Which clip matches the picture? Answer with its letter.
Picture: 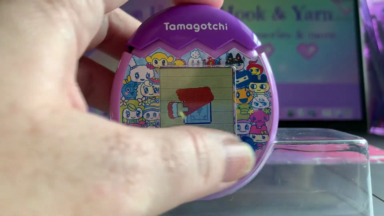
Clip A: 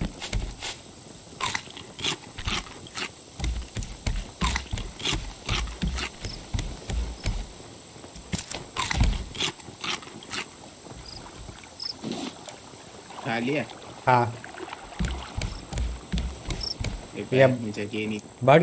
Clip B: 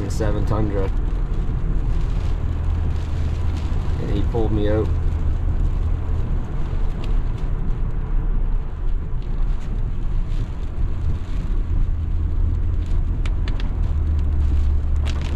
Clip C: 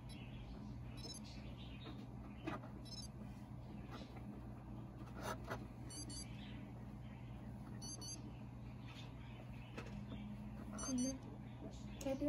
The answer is C